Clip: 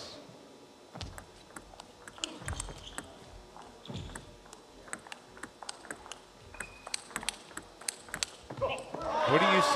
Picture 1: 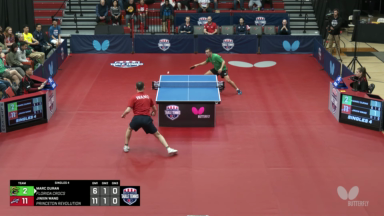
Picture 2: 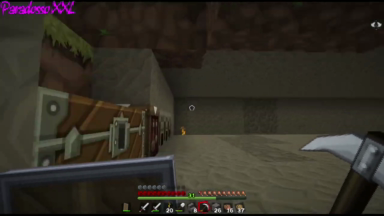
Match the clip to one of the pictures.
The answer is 1